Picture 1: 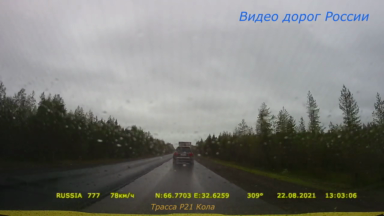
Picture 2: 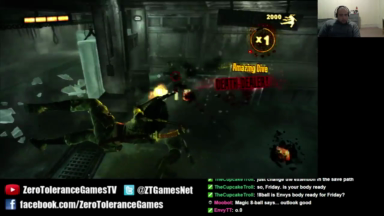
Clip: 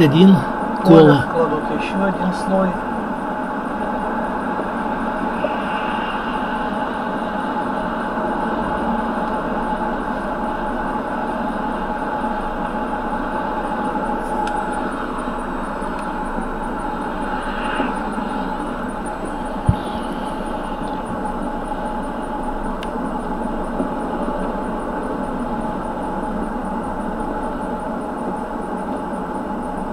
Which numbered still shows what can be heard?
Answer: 1